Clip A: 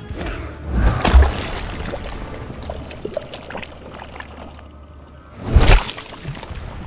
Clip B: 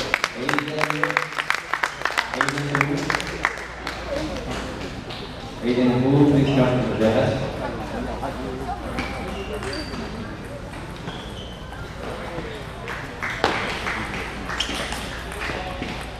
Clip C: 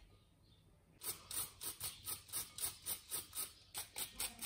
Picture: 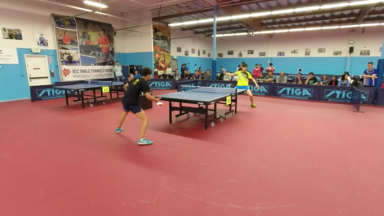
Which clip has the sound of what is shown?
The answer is B